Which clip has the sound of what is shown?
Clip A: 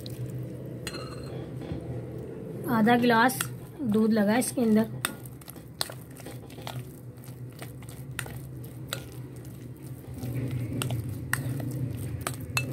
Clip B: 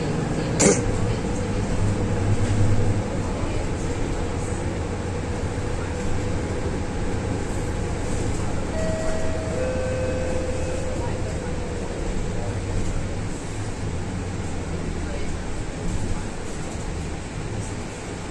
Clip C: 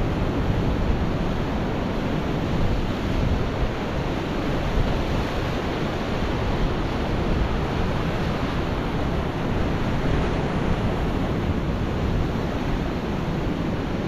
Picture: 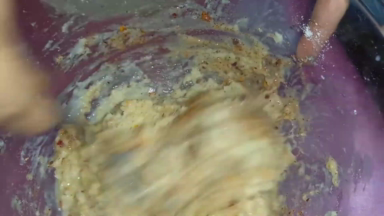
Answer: A